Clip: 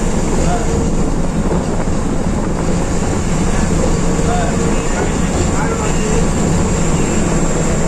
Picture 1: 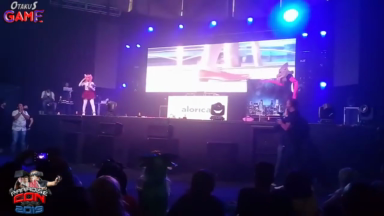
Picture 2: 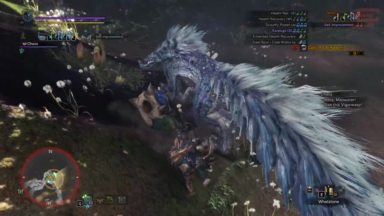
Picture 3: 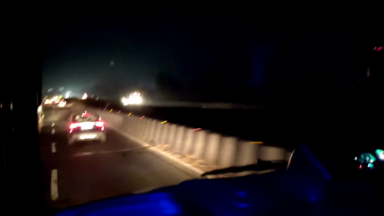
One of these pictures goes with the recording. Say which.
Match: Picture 3